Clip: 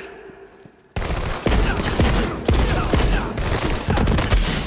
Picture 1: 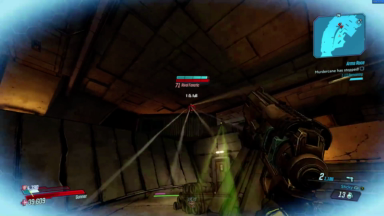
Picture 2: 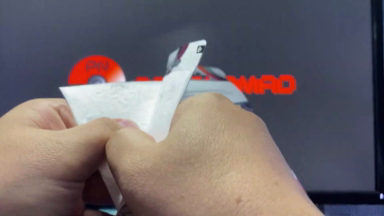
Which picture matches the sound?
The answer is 1